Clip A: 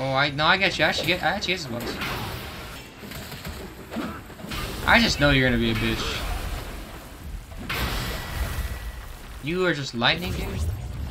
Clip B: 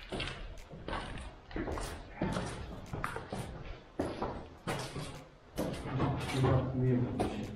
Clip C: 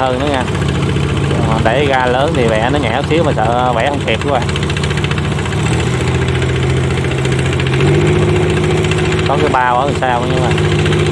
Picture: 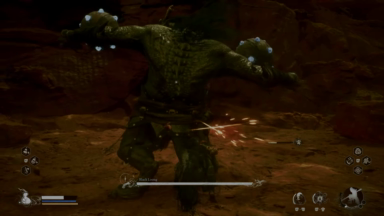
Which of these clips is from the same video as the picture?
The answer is A